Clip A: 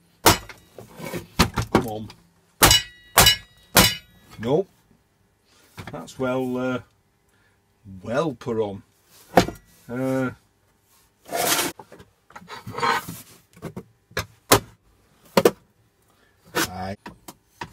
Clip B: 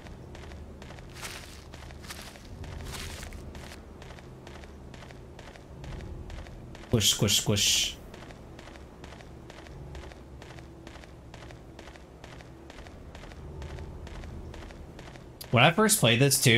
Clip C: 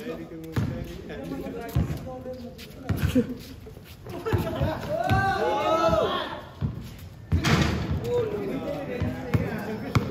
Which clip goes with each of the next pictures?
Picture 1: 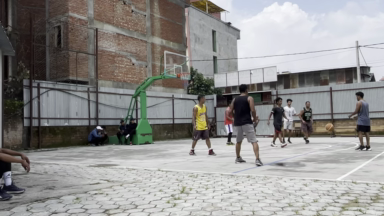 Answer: C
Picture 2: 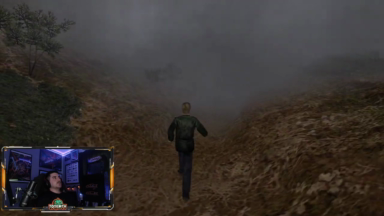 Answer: B